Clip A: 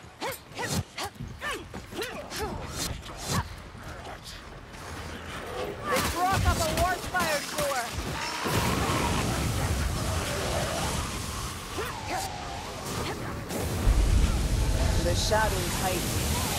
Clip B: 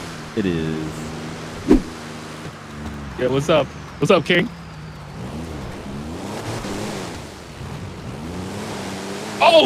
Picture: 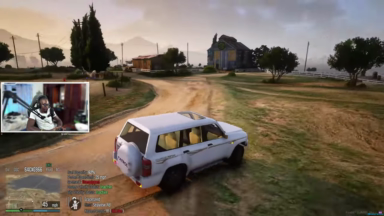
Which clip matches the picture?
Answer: B